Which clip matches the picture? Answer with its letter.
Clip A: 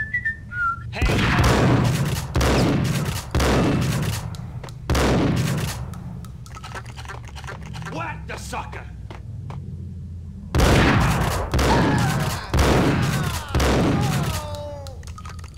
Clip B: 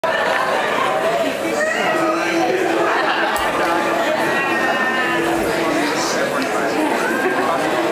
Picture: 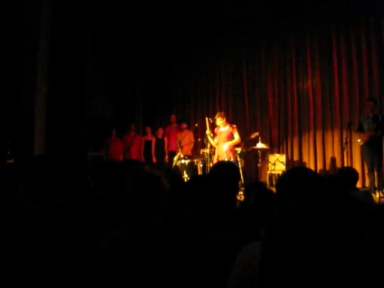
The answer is B